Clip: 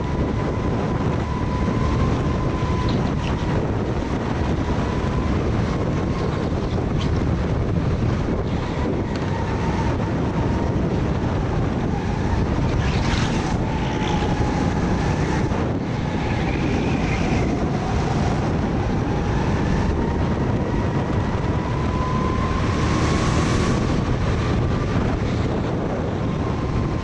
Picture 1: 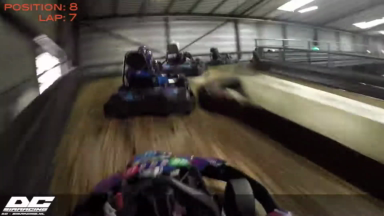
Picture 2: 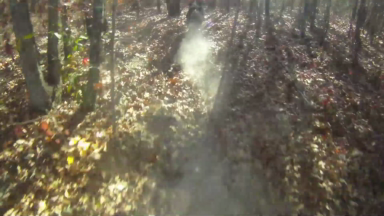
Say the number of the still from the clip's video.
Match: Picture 1